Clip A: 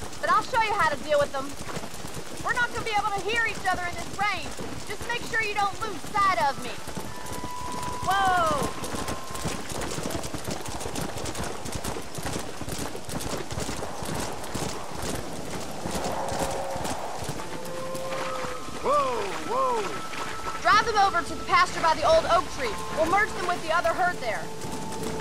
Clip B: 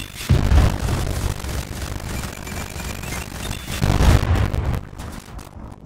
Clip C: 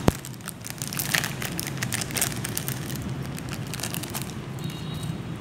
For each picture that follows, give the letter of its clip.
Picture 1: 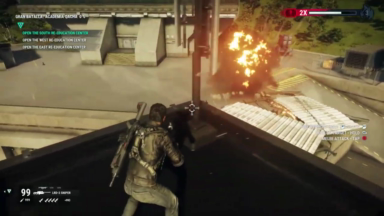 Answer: B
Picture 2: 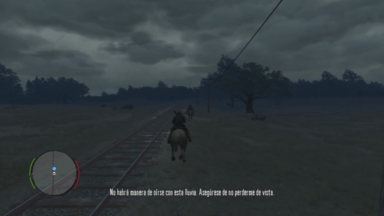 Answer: A